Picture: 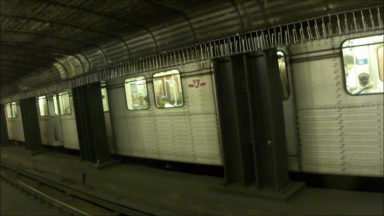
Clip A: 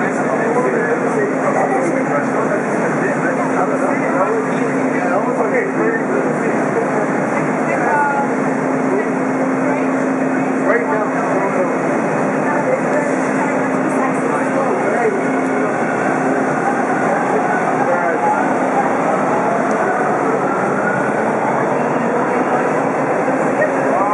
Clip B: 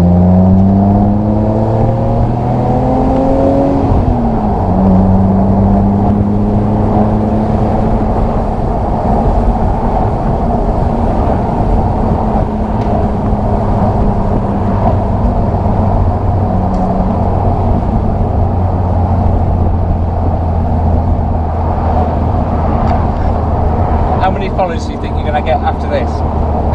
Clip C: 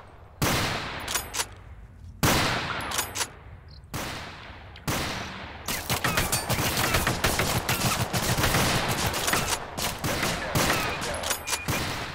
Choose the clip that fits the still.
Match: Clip A